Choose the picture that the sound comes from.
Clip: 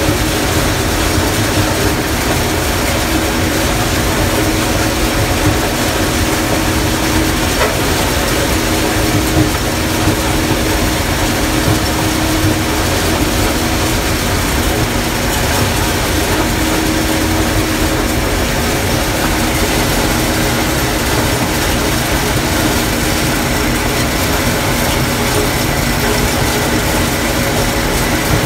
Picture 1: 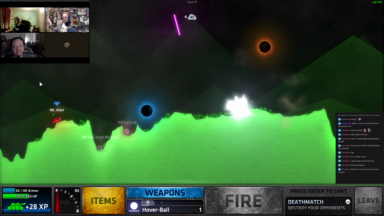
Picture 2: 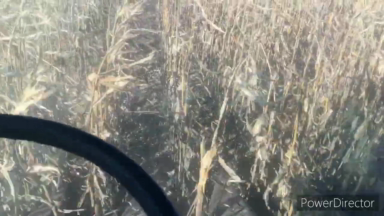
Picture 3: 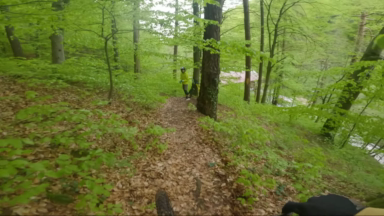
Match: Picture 2